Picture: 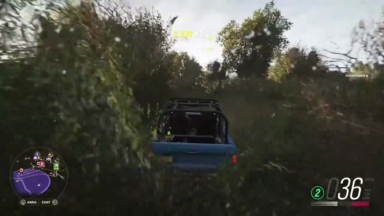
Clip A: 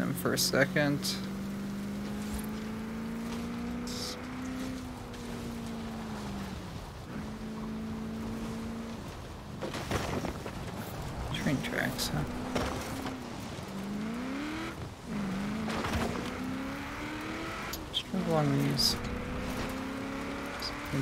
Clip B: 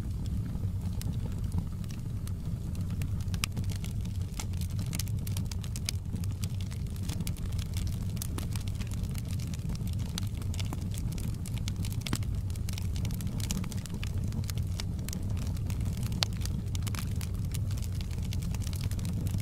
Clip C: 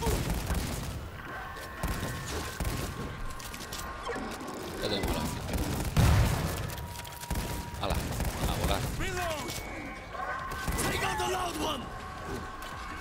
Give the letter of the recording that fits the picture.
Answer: A